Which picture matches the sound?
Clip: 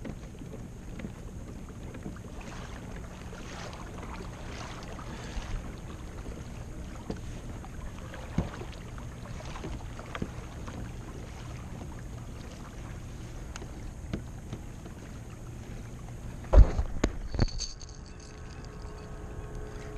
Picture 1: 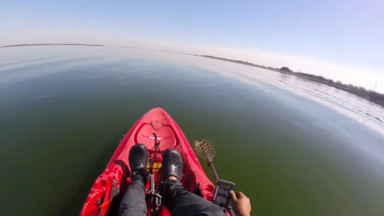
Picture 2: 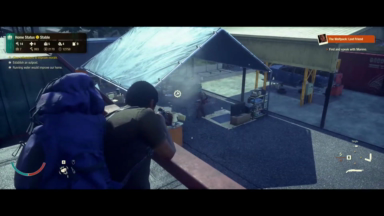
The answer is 1